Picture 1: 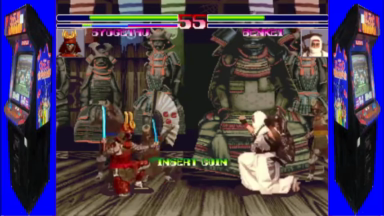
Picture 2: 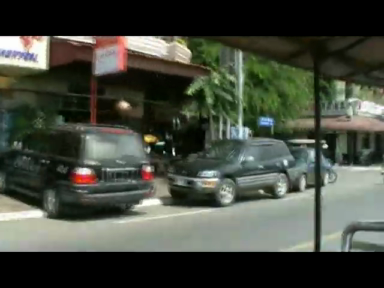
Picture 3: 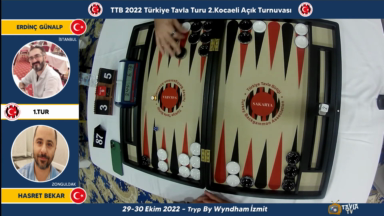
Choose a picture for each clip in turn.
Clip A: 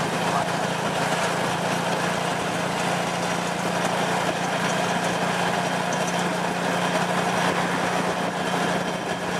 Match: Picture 2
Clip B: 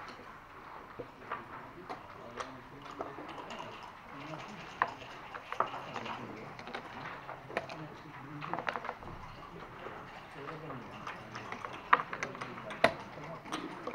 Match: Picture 3